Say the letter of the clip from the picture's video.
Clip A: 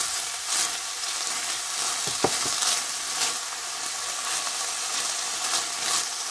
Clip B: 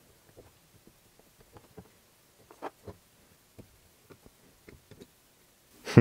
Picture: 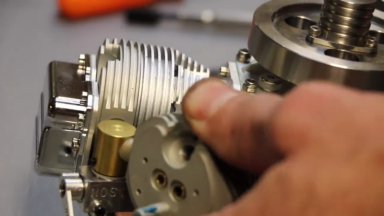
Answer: B